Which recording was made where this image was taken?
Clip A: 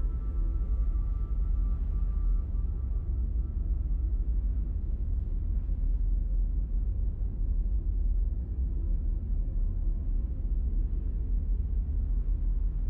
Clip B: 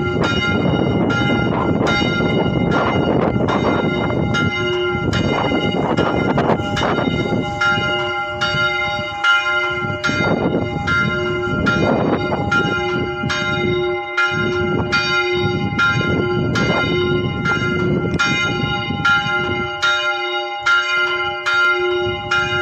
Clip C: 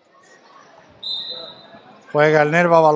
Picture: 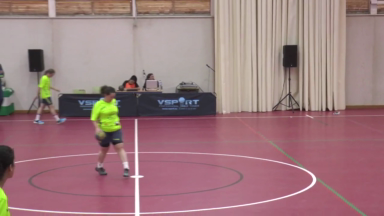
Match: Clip C